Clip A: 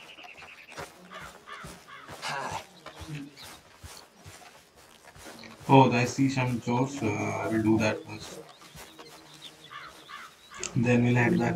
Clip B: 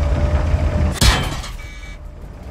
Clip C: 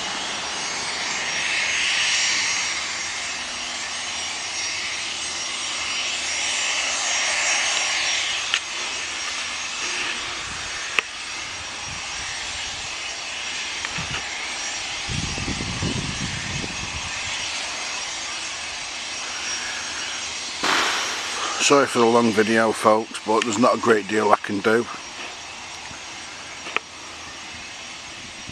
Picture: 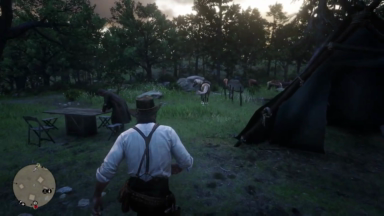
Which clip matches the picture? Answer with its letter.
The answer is A